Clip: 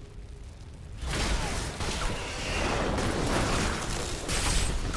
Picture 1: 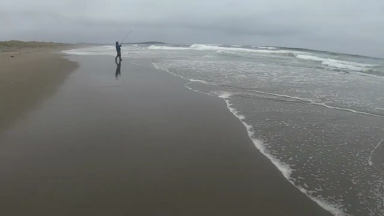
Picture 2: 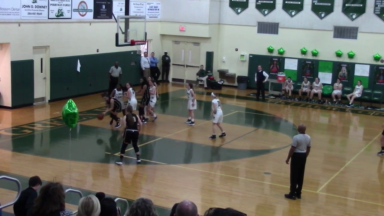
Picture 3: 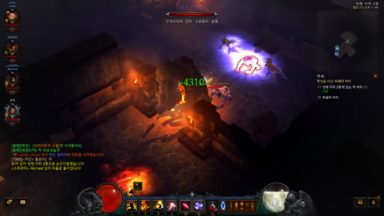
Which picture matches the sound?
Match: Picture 3